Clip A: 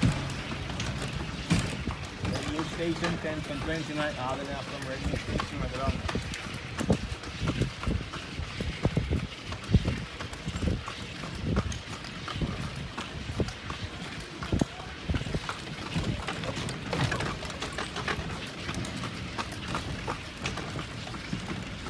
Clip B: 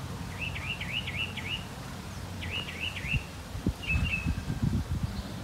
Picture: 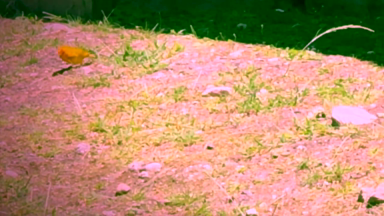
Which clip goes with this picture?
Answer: B